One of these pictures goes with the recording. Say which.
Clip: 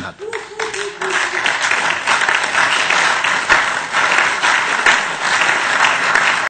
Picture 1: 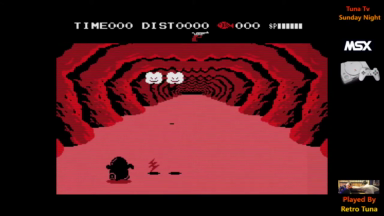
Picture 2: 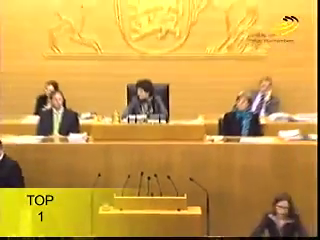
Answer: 2